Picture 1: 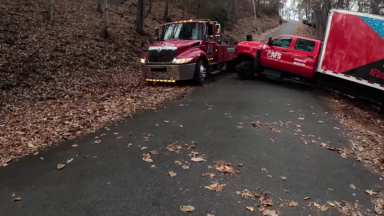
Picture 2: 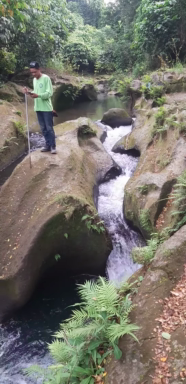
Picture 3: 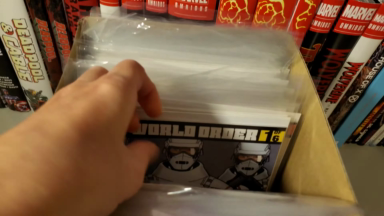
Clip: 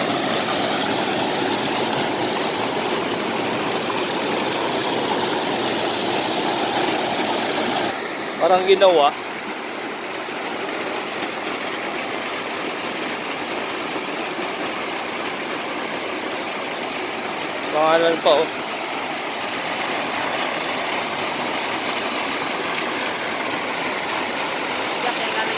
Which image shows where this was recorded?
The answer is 2